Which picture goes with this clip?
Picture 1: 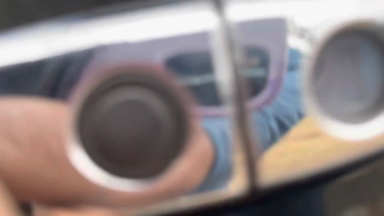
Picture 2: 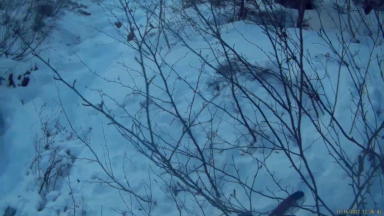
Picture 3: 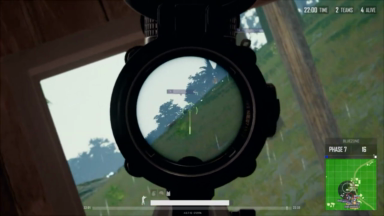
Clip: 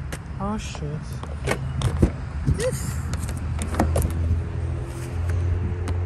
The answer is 1